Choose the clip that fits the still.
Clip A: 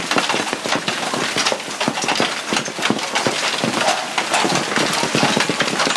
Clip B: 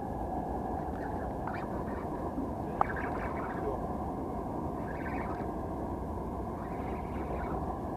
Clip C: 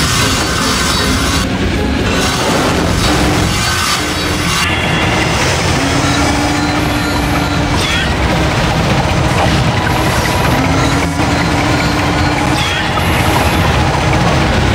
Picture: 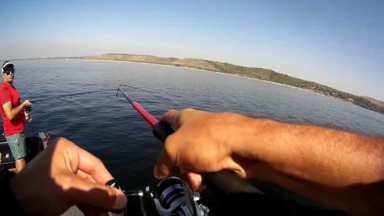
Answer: B